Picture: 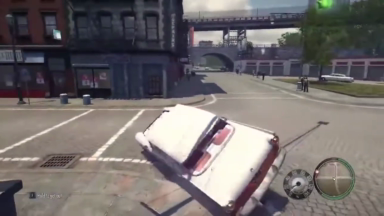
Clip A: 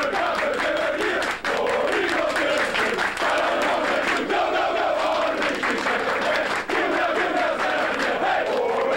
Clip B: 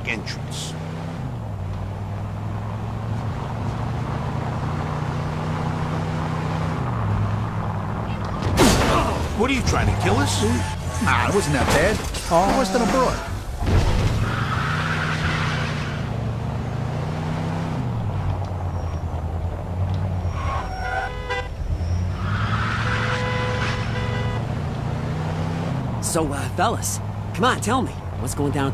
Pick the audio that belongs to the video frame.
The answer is B